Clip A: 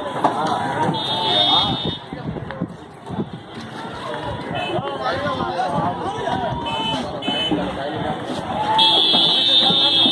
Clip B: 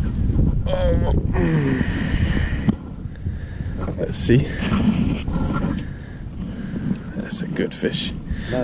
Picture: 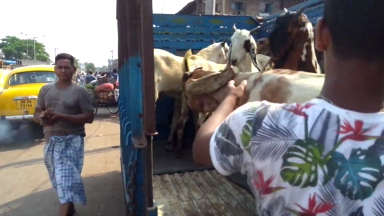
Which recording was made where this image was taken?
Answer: A